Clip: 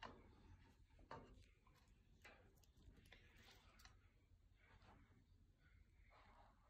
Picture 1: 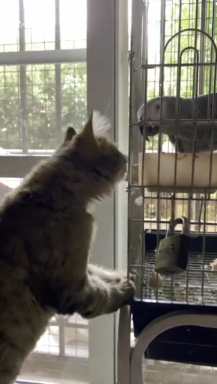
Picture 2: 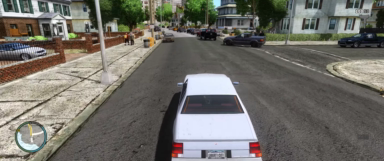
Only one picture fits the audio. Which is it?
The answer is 1